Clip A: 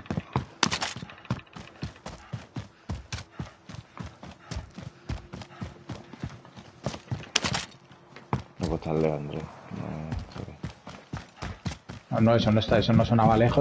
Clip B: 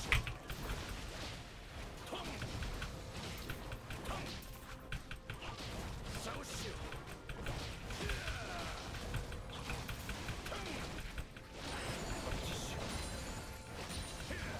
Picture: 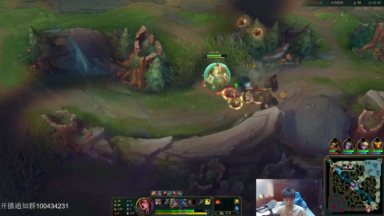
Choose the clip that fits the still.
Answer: B